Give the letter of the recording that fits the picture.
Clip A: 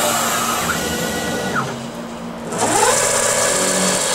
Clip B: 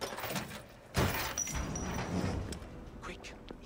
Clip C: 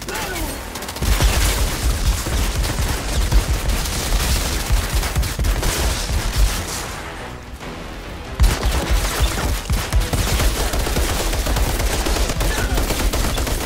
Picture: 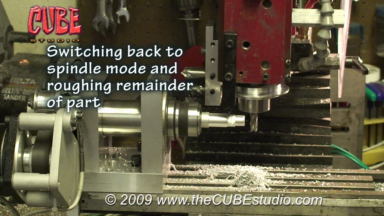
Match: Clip A